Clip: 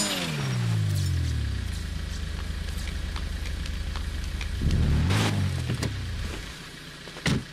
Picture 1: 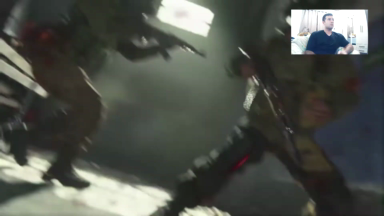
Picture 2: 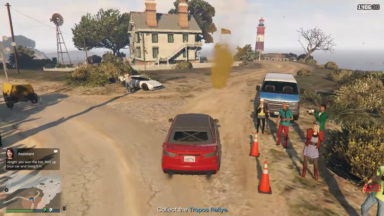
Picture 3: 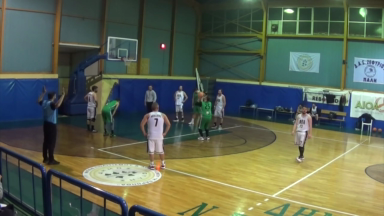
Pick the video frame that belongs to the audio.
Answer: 2